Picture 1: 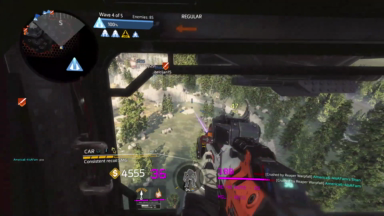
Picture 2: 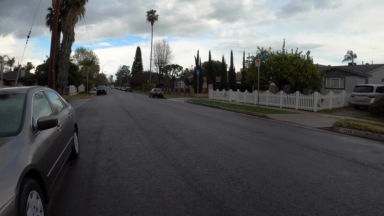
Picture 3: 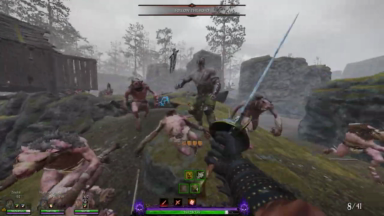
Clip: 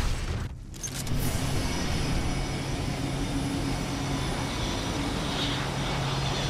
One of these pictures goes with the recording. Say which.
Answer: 1